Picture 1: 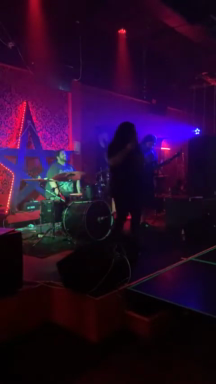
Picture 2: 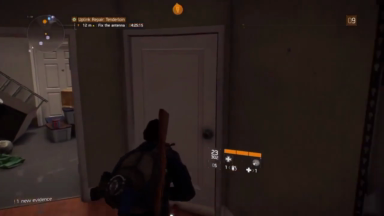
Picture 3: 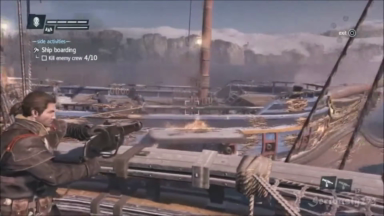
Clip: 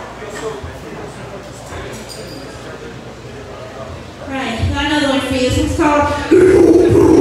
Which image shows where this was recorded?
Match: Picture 1